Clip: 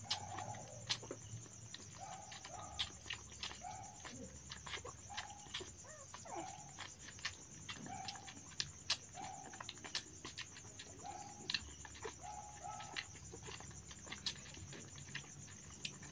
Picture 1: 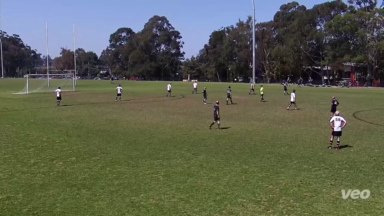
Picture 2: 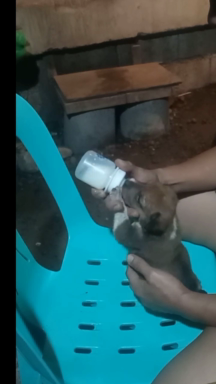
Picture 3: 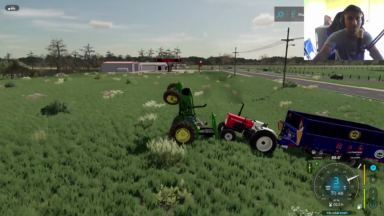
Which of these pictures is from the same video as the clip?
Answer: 2